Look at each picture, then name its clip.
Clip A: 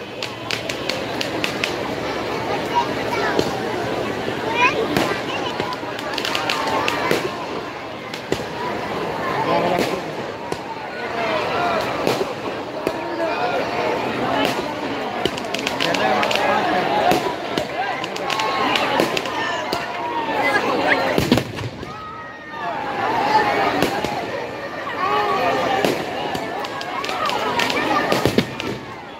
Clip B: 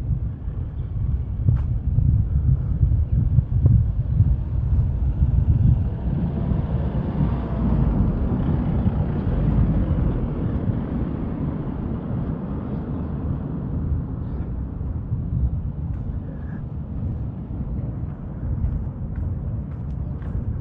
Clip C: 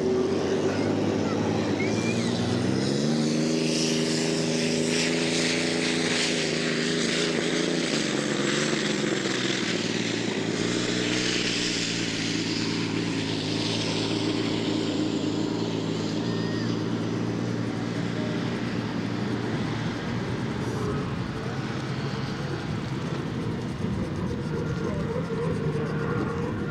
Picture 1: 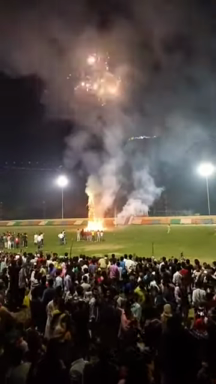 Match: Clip A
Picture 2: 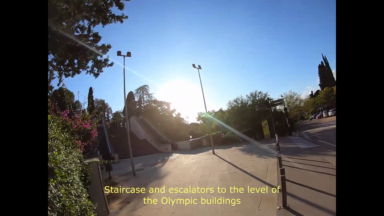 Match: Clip B